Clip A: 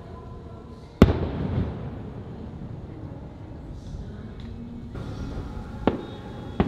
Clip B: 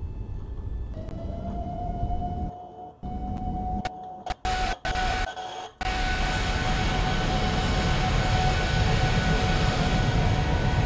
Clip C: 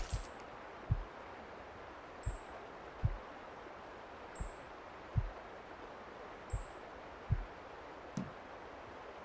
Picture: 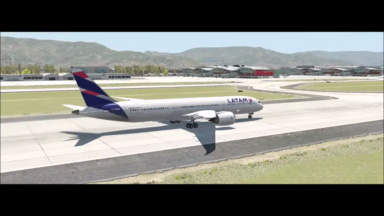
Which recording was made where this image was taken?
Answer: B